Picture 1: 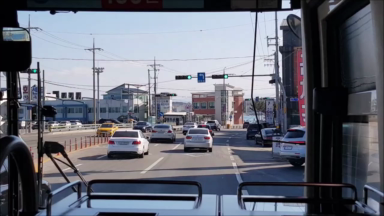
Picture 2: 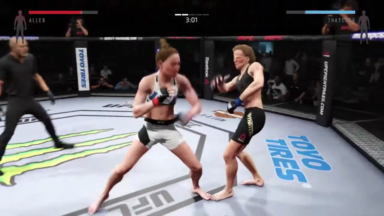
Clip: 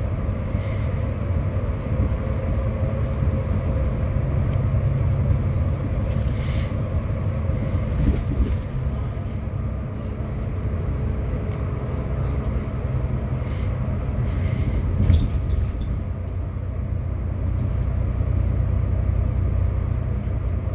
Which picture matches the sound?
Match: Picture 1